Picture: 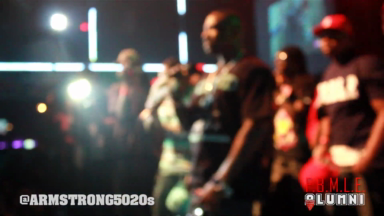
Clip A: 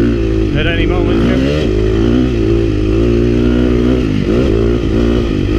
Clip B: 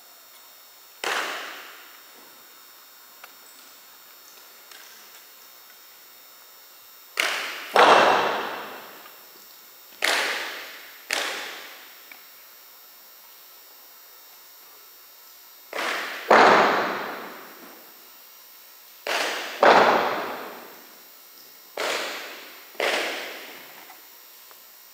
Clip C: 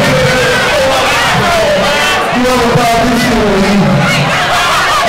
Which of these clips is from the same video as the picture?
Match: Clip C